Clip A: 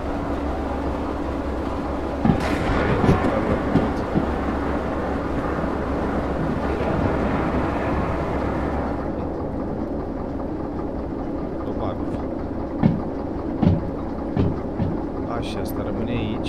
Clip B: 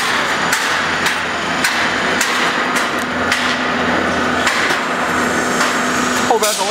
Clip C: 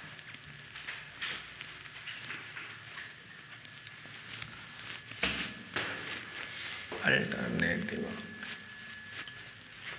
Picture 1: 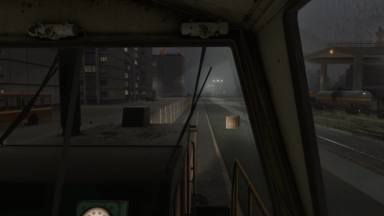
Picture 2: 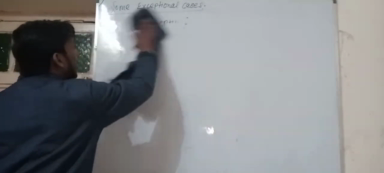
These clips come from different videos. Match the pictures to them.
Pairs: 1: A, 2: C